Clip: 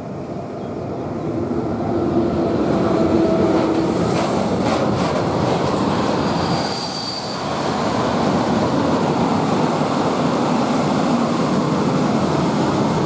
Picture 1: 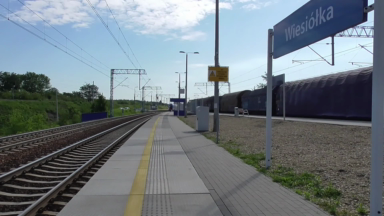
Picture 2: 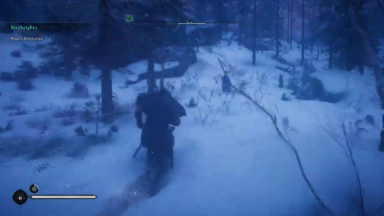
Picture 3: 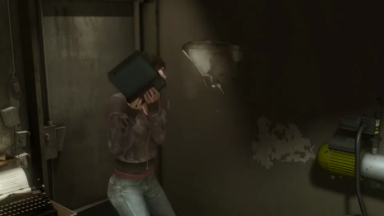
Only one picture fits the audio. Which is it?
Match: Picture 1